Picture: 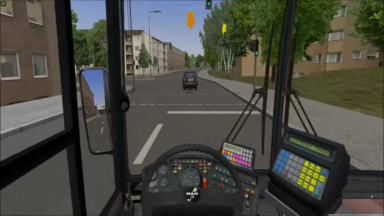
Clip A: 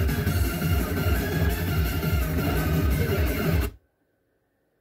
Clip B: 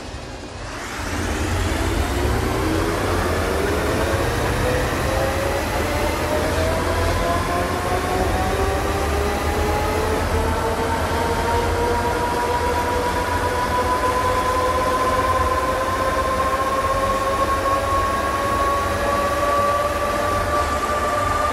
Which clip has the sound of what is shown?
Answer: B